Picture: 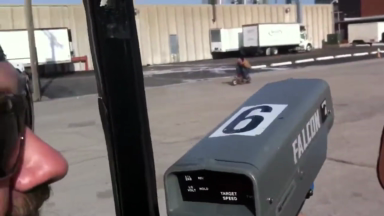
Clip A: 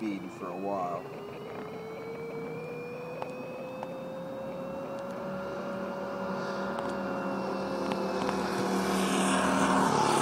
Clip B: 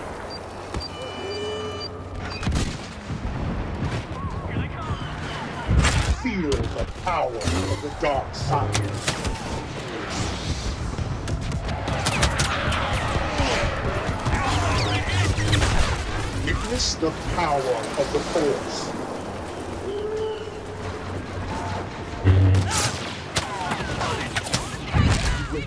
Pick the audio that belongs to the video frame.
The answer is A